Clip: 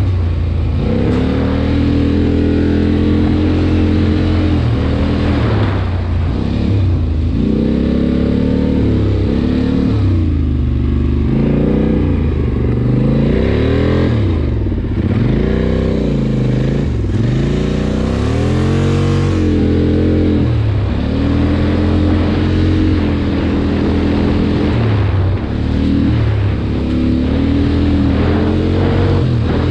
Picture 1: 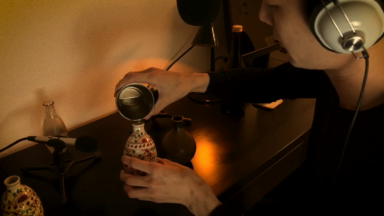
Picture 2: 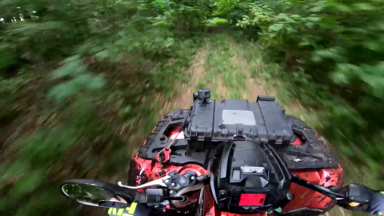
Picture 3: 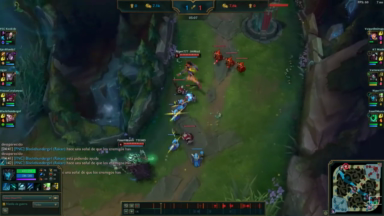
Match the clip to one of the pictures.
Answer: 2